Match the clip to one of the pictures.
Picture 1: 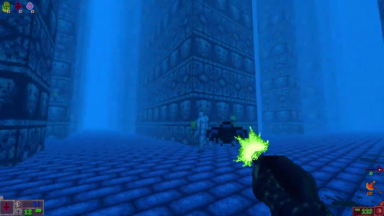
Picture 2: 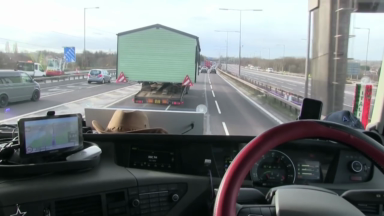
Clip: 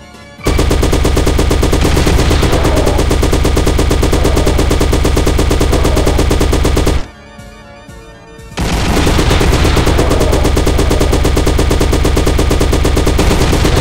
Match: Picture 1